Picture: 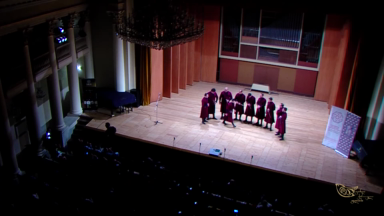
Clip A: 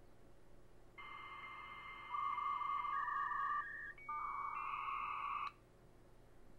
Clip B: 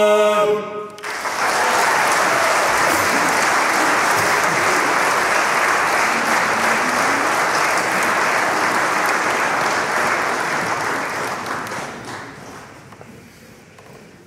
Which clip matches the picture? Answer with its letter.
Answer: B